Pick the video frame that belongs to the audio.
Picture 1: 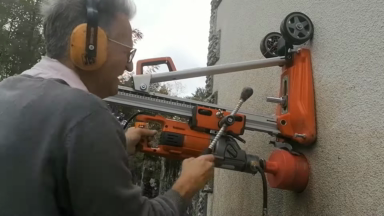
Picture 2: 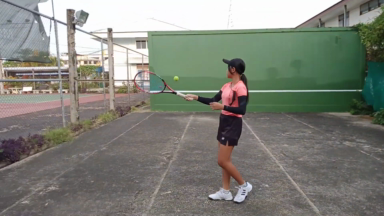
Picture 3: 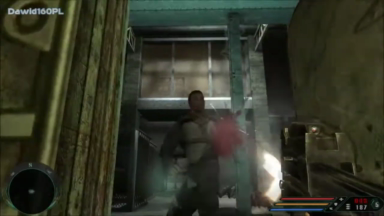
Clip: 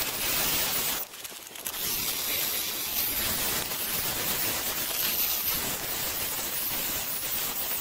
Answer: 1